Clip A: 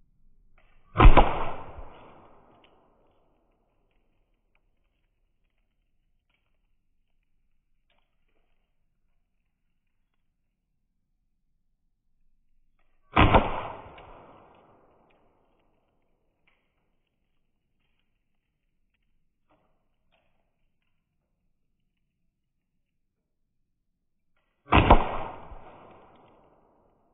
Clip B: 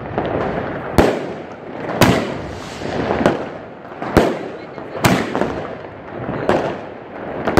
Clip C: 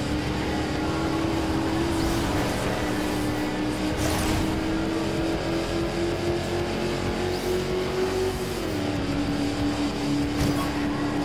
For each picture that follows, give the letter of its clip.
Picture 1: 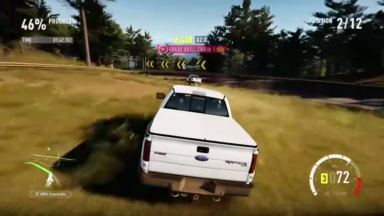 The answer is C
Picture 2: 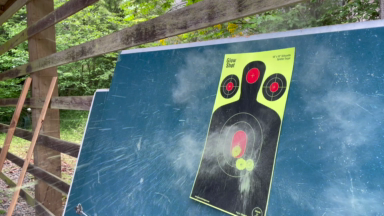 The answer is A